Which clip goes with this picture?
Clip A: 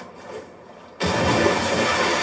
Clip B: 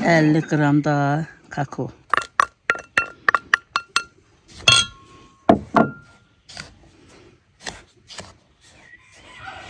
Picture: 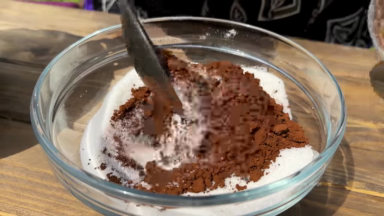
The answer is B